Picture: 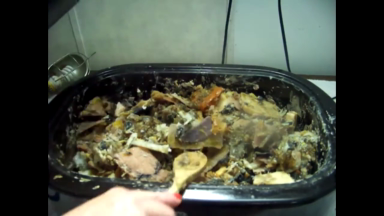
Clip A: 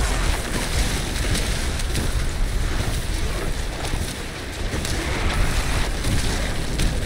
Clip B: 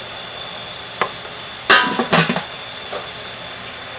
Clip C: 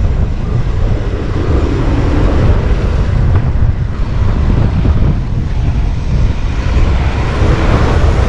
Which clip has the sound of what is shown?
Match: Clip B